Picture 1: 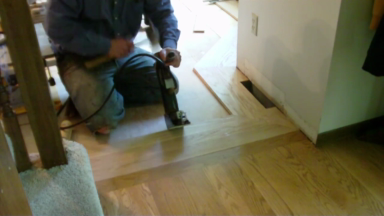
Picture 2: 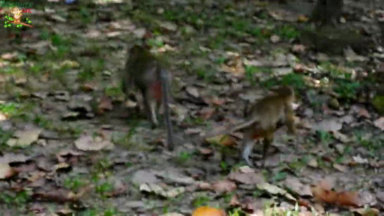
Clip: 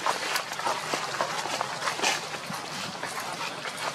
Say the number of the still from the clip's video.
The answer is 2